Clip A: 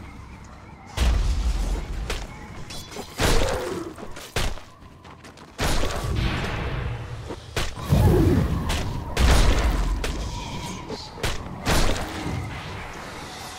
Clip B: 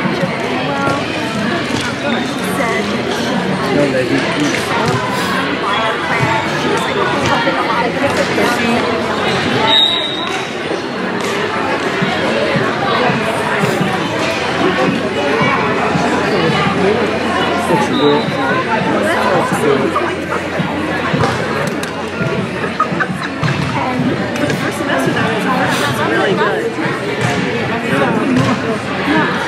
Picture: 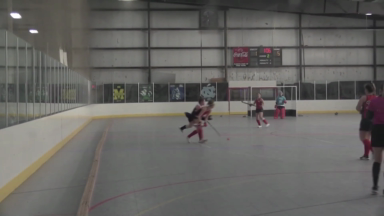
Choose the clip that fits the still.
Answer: B